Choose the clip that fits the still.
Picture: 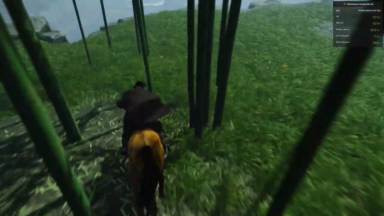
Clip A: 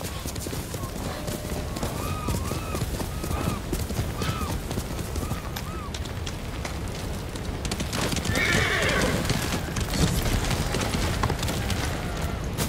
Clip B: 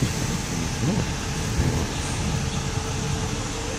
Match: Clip A